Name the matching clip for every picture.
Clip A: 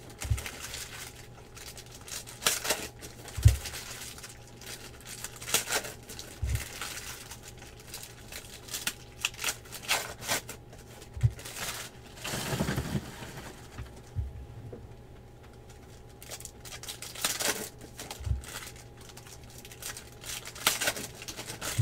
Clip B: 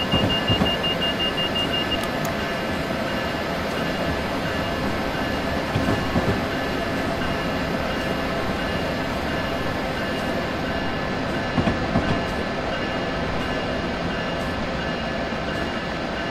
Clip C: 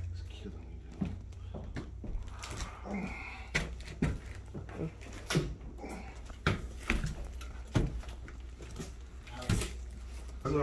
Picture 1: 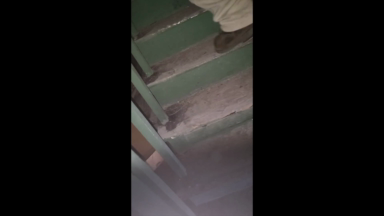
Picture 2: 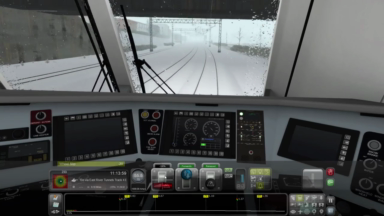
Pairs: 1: C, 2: B